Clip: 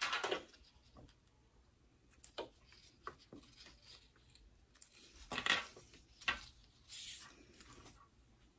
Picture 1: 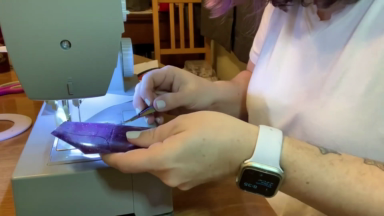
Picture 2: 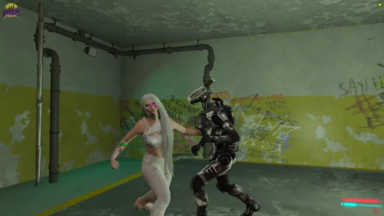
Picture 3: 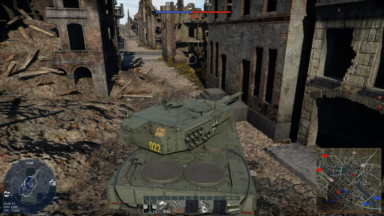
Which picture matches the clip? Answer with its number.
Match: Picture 1